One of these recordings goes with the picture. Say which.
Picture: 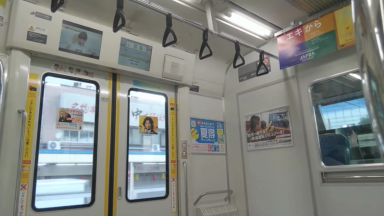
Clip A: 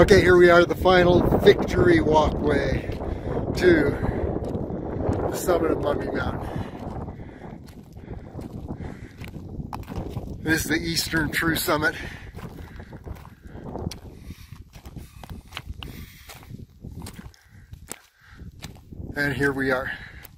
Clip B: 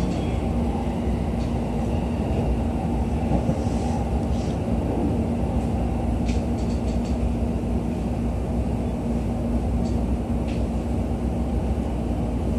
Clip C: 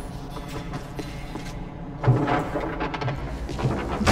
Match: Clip B